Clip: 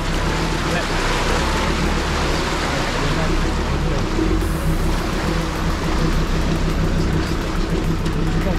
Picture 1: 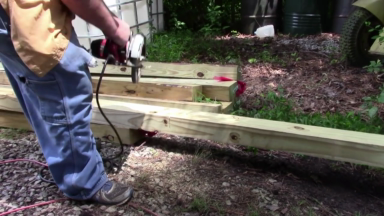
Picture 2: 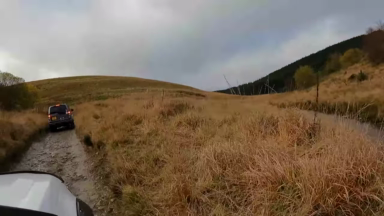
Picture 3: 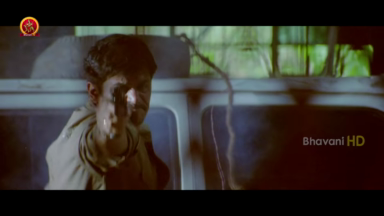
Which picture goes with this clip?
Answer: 2